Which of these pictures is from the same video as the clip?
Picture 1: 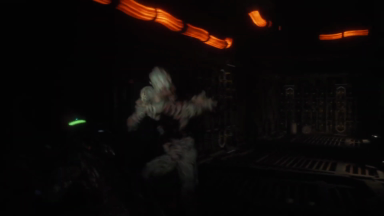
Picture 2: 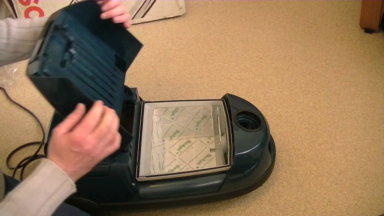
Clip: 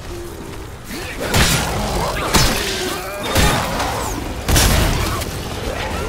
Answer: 1